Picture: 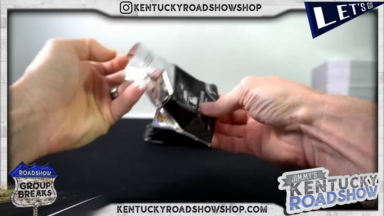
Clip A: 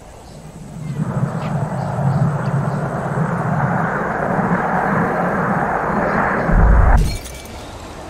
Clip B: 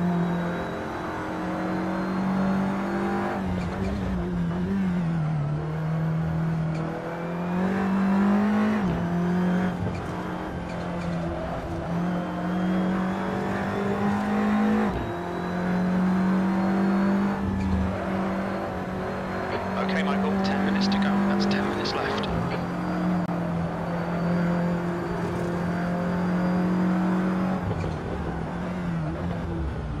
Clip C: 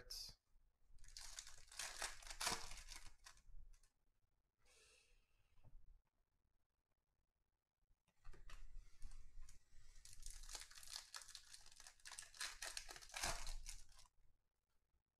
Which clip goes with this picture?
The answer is C